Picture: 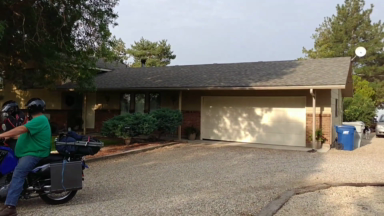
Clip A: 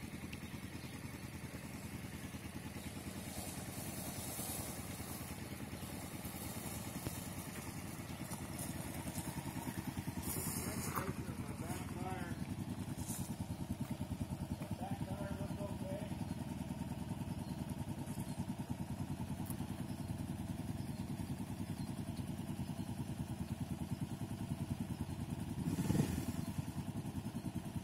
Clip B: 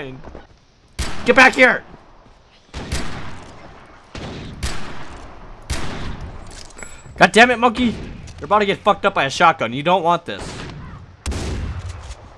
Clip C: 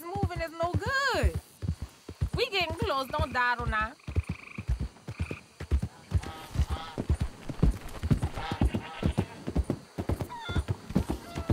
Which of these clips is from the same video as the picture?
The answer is A